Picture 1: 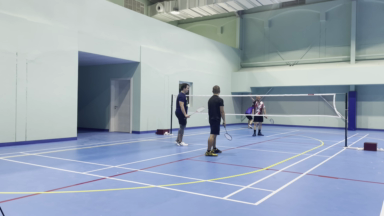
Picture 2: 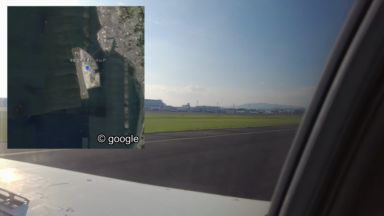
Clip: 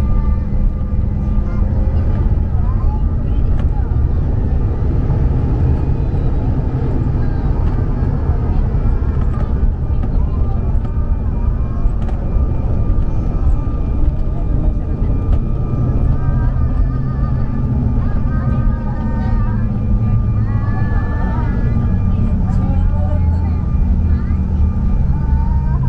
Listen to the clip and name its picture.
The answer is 2